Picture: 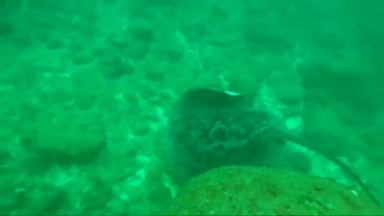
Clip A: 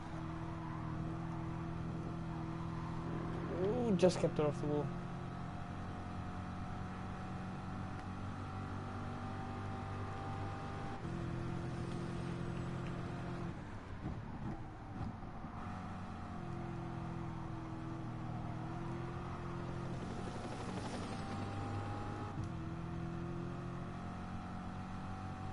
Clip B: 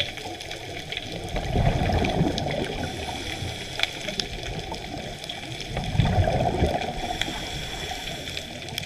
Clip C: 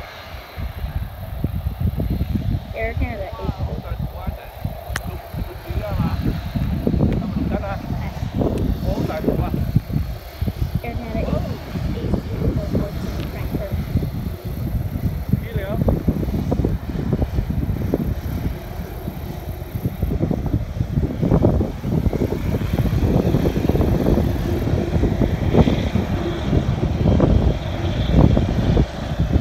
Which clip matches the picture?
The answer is B